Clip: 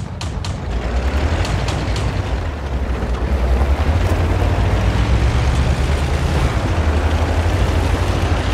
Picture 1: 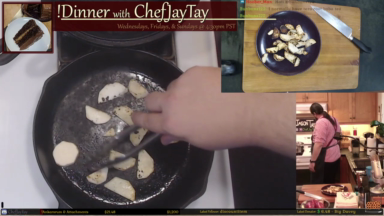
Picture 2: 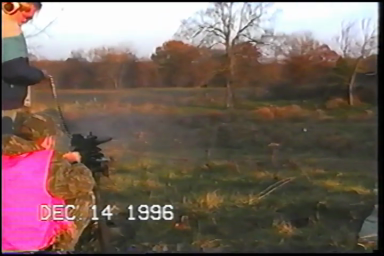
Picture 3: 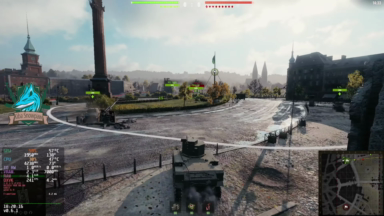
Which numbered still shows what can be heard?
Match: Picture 3